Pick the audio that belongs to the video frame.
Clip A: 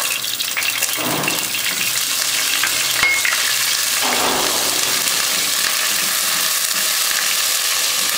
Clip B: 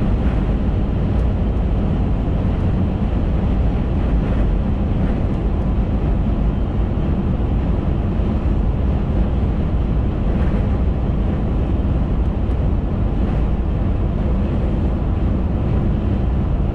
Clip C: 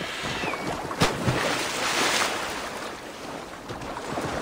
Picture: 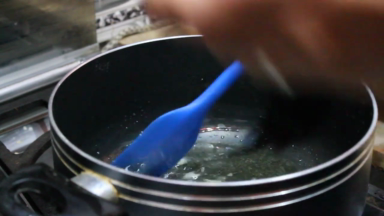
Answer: A